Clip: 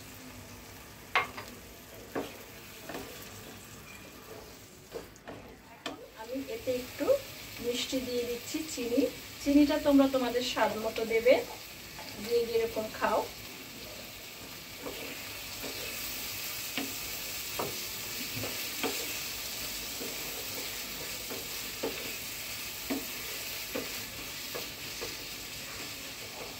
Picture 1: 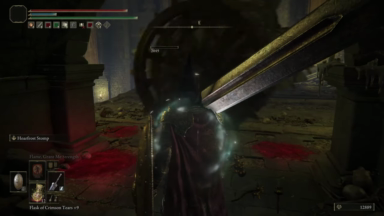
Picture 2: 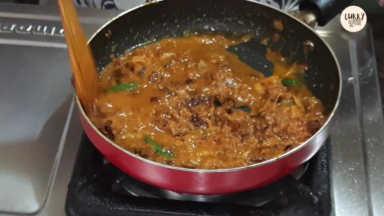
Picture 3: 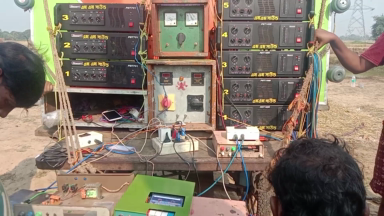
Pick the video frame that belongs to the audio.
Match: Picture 2